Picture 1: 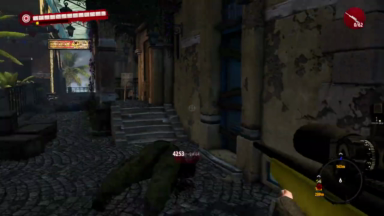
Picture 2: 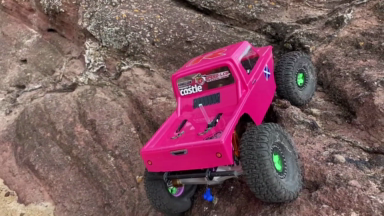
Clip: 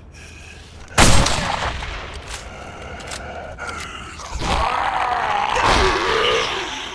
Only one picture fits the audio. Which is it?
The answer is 1